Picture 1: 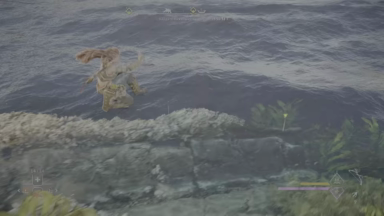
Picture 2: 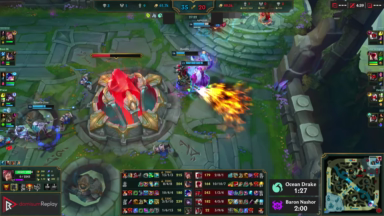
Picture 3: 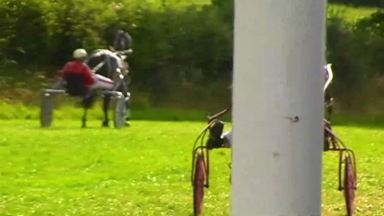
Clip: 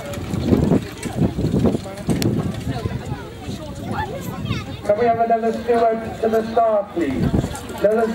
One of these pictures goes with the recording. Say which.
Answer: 3